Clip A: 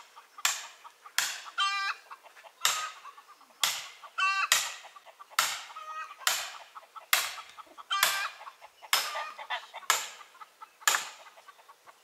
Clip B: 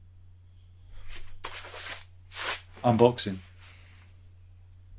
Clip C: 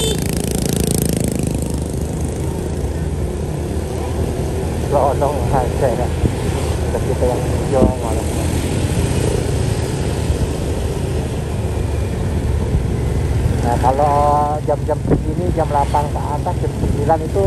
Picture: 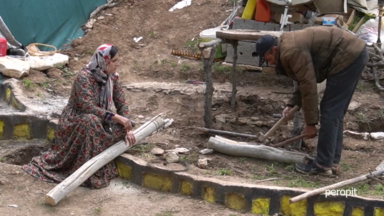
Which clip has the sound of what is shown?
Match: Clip A